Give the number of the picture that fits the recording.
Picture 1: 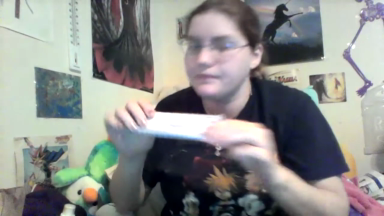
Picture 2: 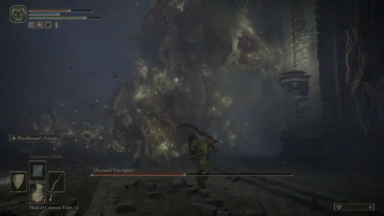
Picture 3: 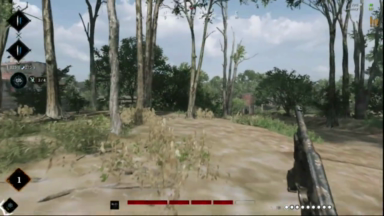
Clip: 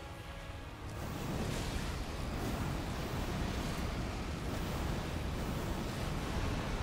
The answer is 2